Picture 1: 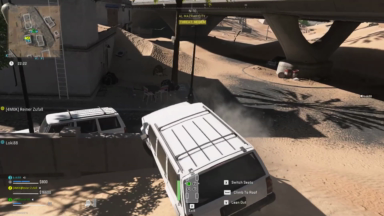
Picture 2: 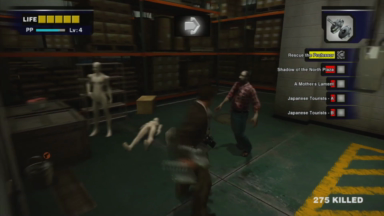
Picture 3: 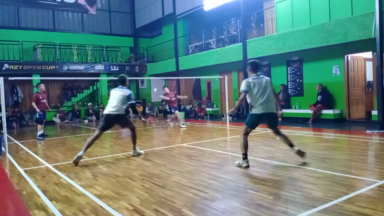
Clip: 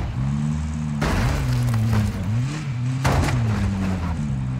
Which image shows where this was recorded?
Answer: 1